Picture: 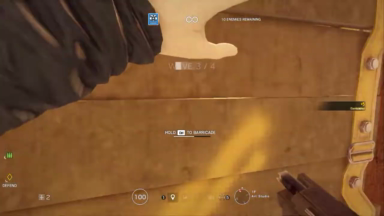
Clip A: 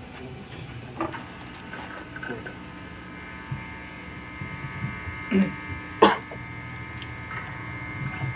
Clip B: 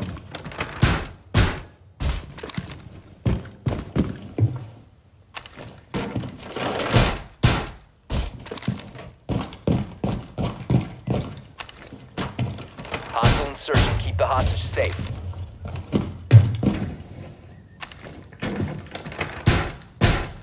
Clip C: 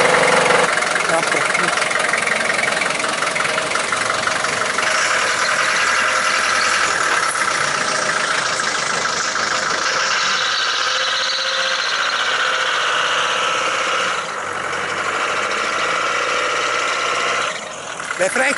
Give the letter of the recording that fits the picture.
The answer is B